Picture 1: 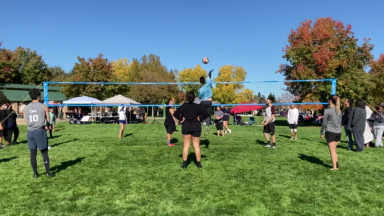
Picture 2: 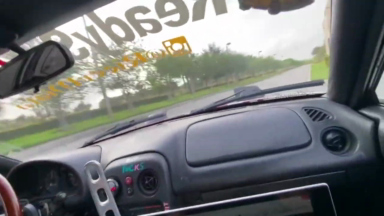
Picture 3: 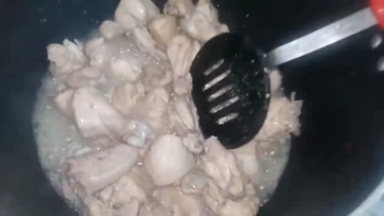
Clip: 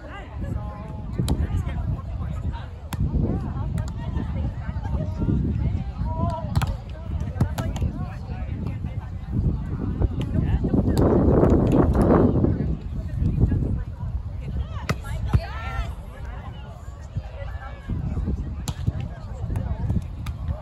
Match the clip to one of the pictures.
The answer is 1